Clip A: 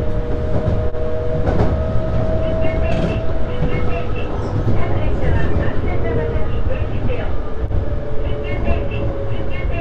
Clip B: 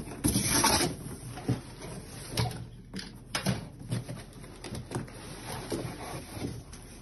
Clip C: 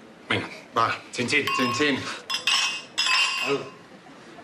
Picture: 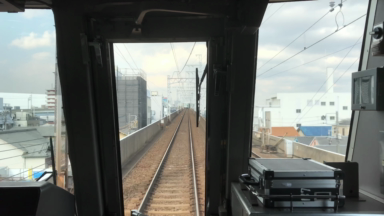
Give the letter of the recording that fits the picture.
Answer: A